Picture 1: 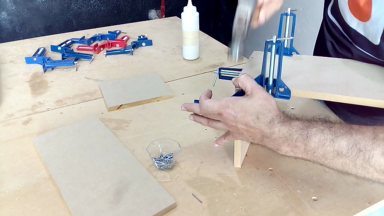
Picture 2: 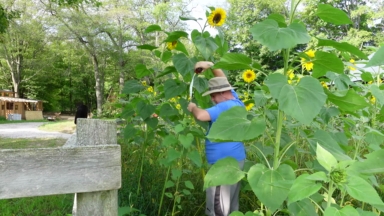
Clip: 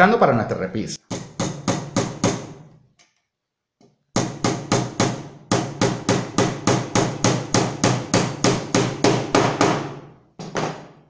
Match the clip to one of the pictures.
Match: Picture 1